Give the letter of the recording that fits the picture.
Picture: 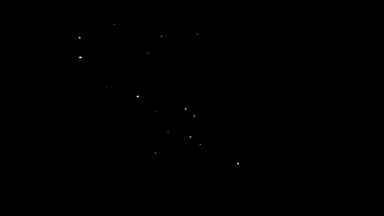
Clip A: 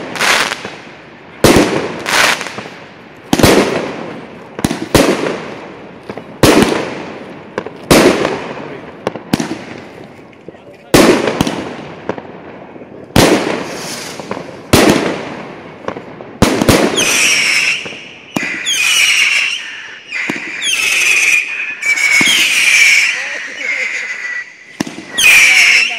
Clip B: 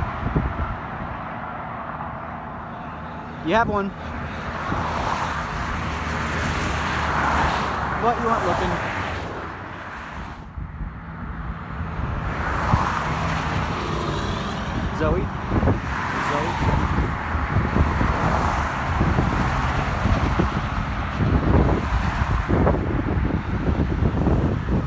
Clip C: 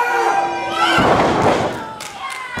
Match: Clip A